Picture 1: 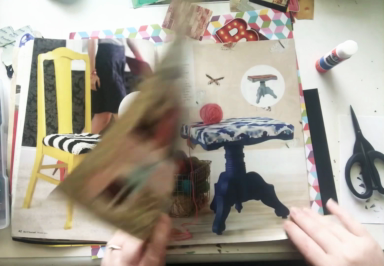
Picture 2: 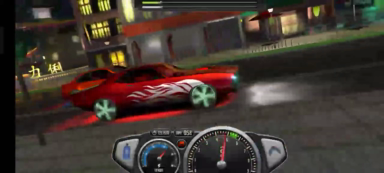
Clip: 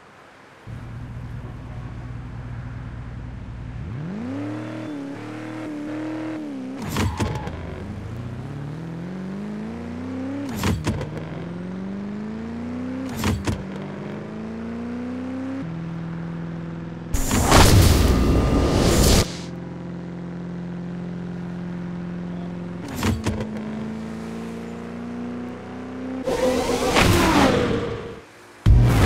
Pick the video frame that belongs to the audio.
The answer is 2